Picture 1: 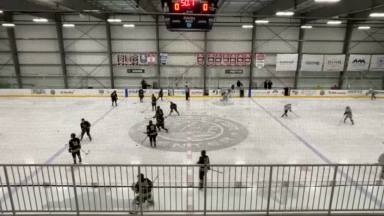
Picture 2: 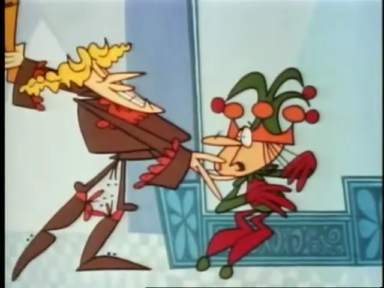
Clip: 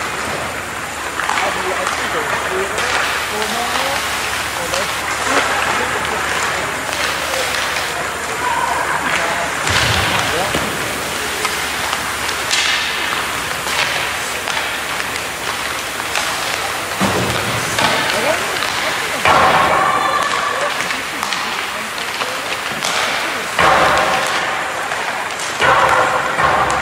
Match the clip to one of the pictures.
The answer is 1